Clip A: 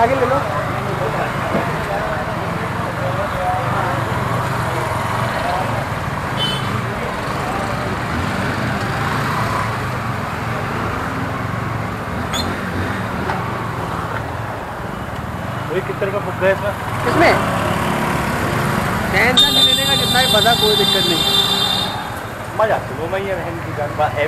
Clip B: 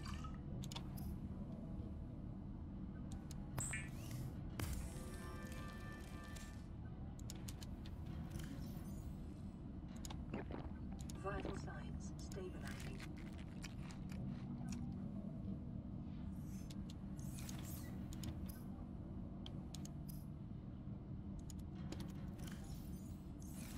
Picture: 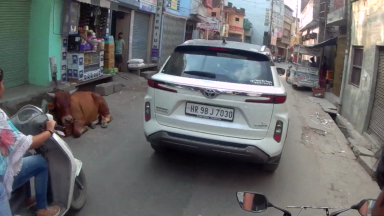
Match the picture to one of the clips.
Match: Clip A